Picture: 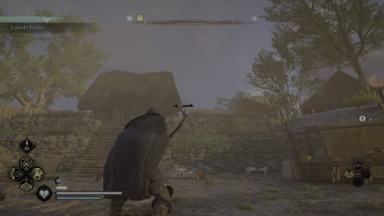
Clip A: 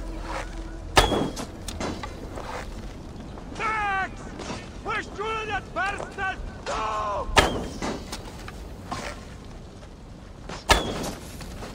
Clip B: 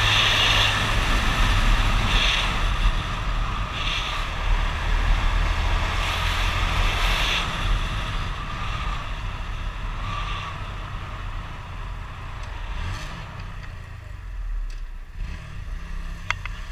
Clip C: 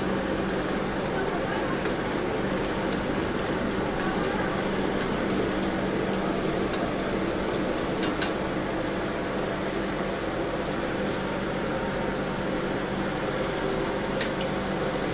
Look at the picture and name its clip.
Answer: A